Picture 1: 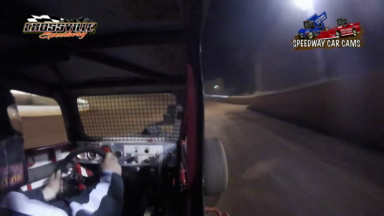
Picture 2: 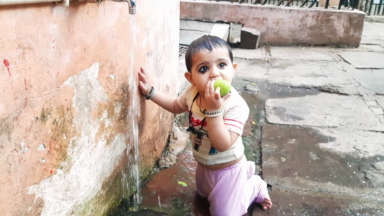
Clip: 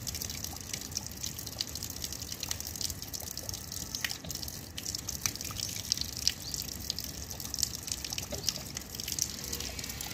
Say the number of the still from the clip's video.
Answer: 2